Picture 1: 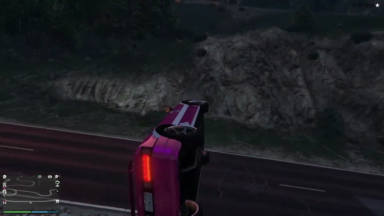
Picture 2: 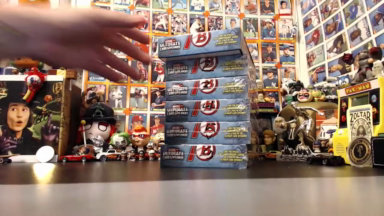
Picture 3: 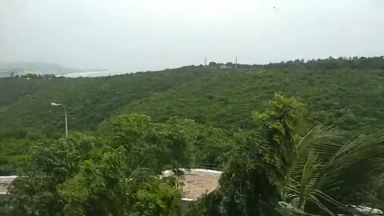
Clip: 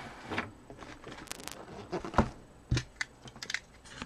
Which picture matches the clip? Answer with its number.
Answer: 2